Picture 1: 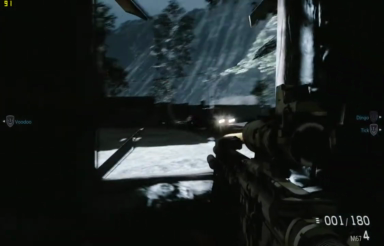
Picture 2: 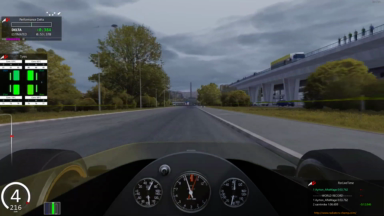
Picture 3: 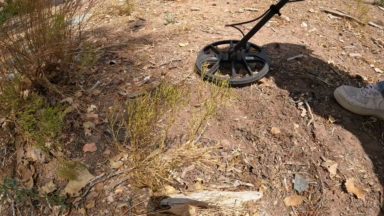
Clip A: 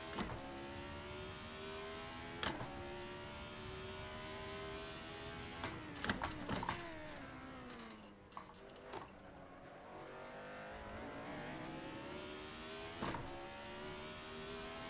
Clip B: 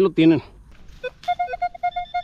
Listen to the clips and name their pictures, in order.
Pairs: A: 2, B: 3